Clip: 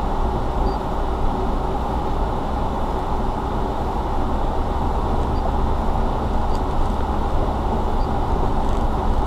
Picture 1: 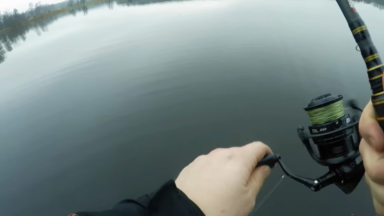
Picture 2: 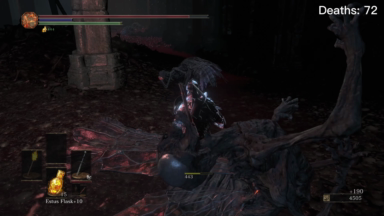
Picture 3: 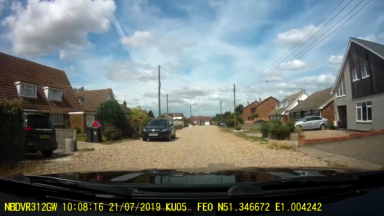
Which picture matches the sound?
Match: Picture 3